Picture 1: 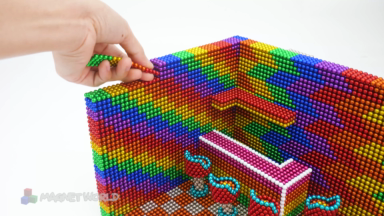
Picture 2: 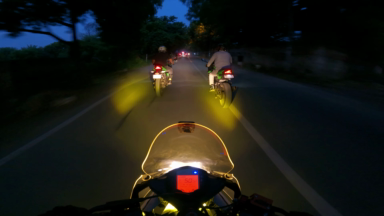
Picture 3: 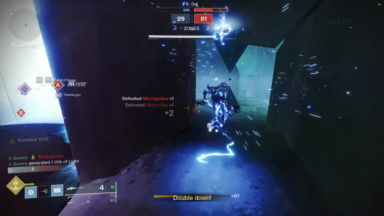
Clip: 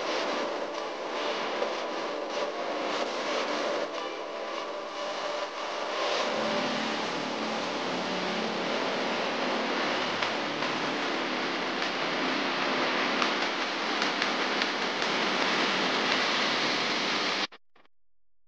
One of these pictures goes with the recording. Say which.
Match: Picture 2